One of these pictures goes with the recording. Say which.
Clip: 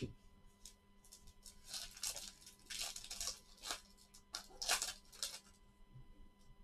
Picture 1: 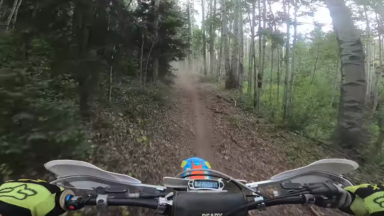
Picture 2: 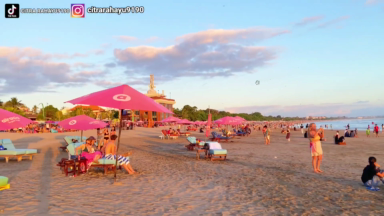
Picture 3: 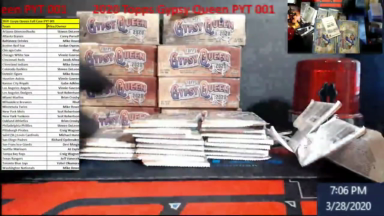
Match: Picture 3